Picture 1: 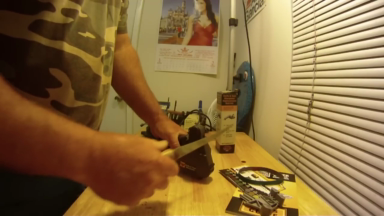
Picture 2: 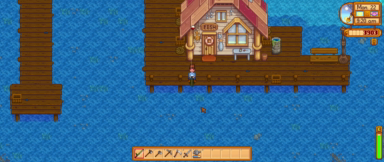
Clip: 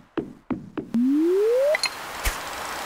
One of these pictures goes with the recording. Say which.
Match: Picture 2